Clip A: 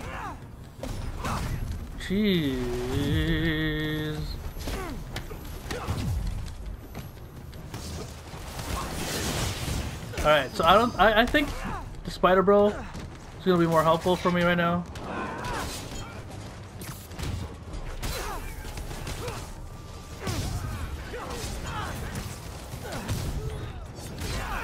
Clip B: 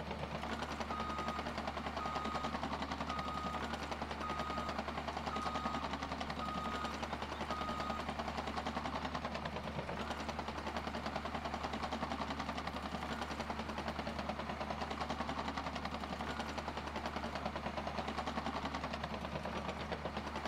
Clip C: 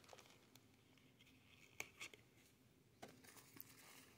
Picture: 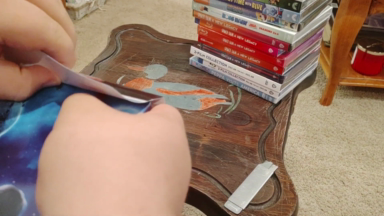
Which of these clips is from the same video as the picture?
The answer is C